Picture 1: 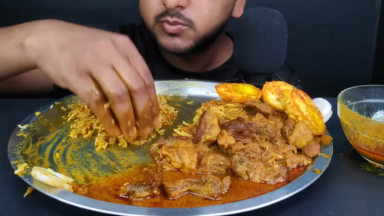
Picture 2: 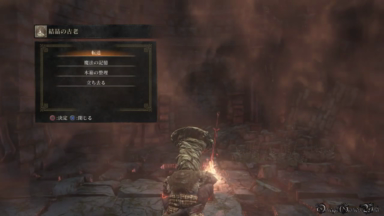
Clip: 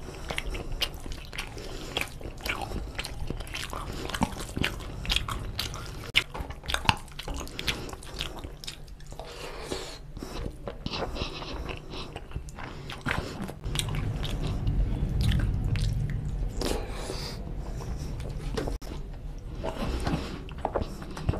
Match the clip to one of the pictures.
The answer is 1